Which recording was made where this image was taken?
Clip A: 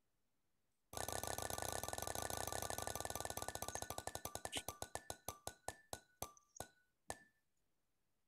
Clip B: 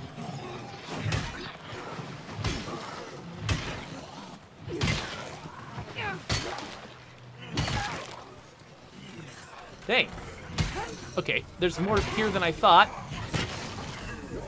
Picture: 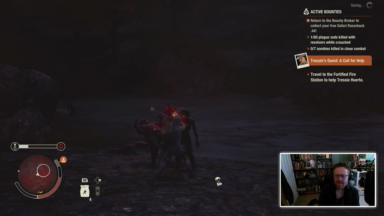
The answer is B